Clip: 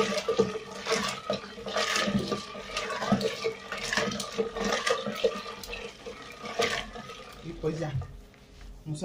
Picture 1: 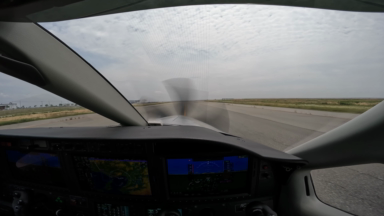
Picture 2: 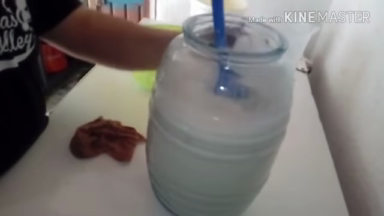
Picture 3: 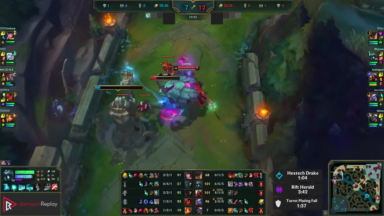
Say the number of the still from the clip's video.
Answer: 2